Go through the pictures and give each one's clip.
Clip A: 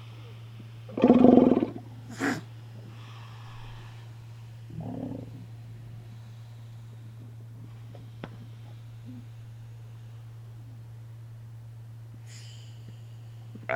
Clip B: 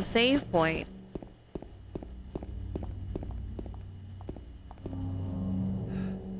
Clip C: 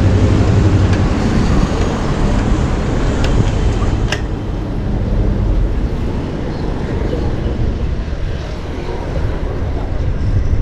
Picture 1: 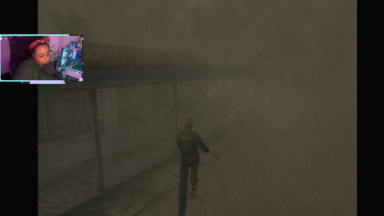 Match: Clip B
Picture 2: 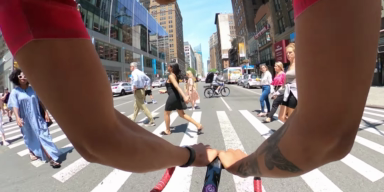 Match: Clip C